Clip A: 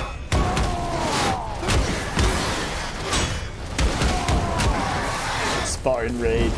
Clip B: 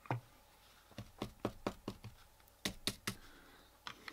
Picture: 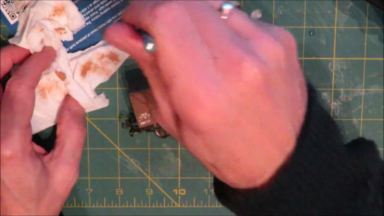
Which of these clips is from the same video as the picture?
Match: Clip B